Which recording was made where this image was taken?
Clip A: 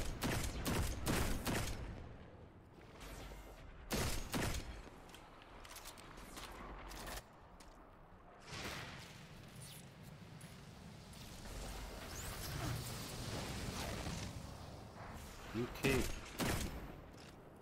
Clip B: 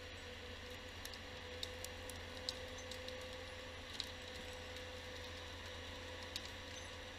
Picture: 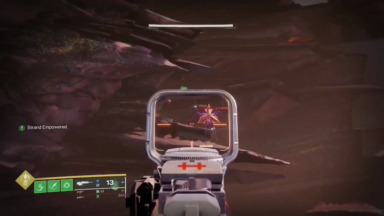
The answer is A